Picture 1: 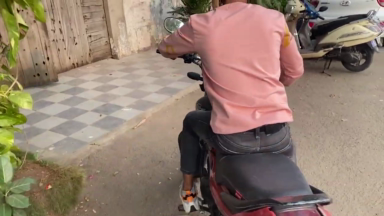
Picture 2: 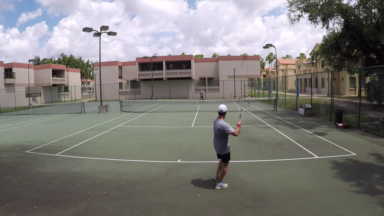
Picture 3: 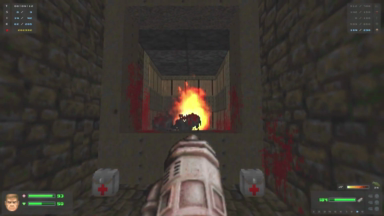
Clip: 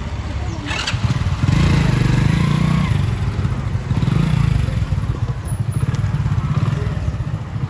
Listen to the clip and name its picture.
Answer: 1